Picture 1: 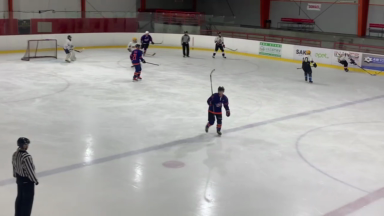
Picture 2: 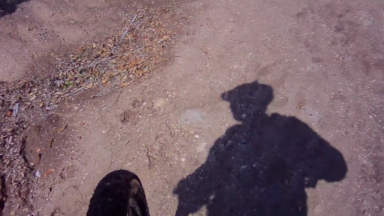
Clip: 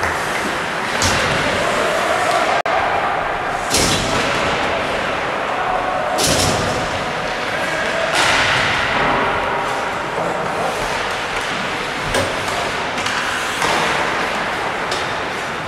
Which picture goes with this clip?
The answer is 1